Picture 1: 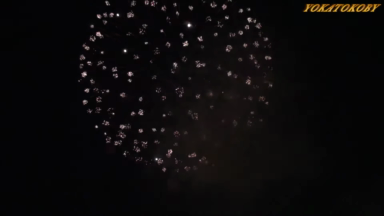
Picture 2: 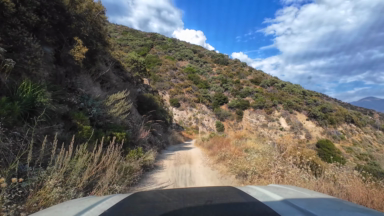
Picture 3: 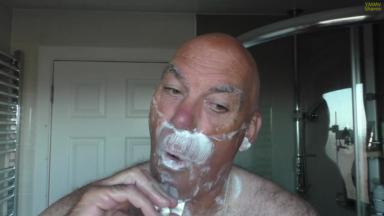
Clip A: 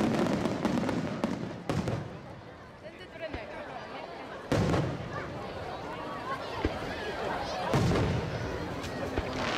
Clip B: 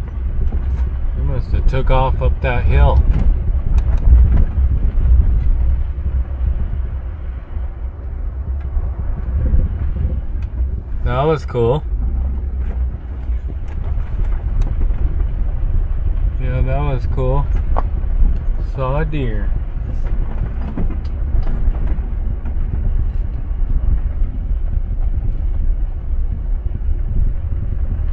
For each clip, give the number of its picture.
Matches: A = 1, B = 2